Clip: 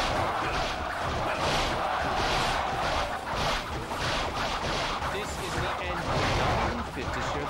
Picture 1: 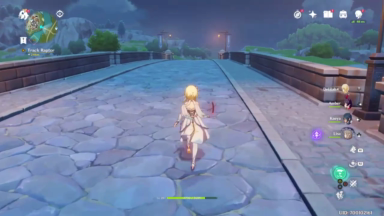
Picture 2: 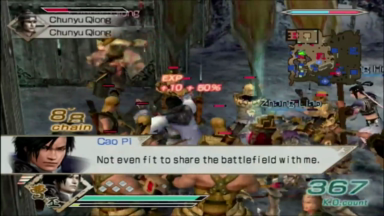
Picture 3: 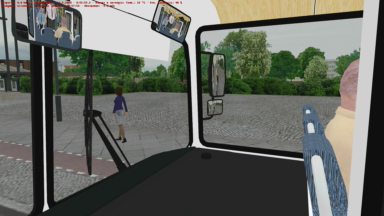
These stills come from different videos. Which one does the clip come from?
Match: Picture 2